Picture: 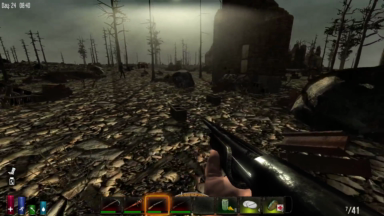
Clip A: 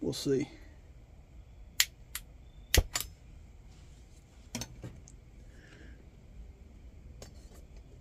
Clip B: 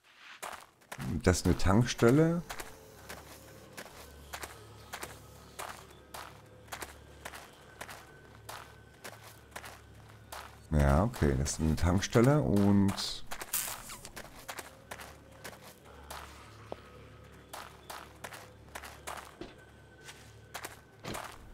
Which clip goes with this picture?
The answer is B